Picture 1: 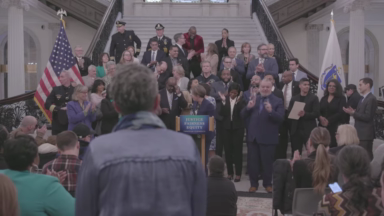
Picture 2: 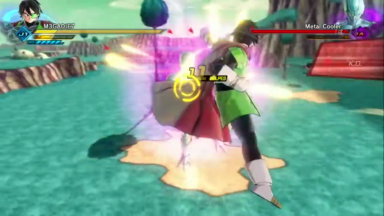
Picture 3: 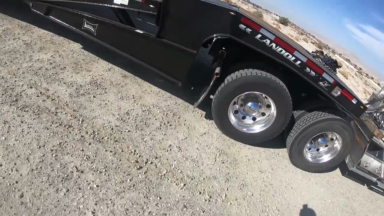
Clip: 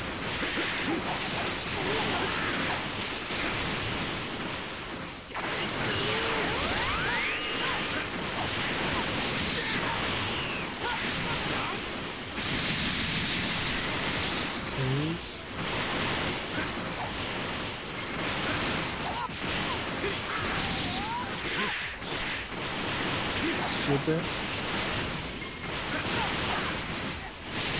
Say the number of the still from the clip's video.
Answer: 2